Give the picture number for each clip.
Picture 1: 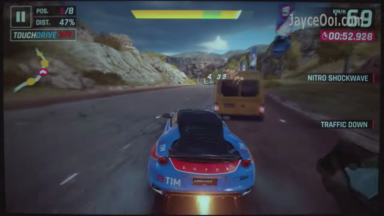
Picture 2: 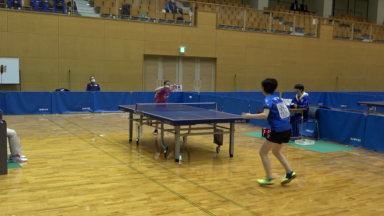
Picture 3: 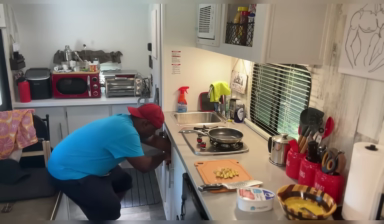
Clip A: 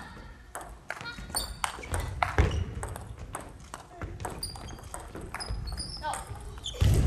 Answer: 2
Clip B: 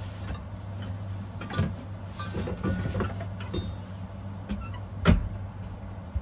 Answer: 3